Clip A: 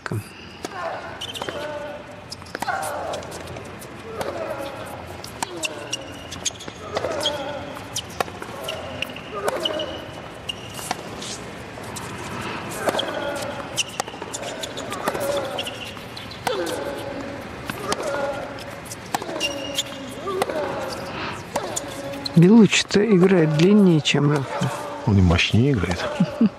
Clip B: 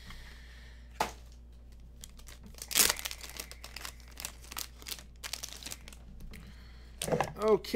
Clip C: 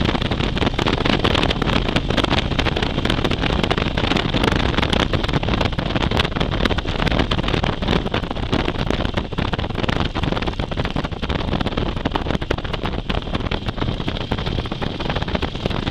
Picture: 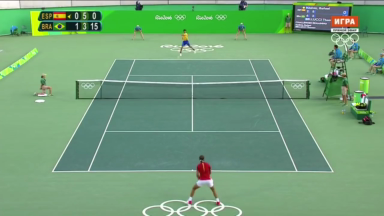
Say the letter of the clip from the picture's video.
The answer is A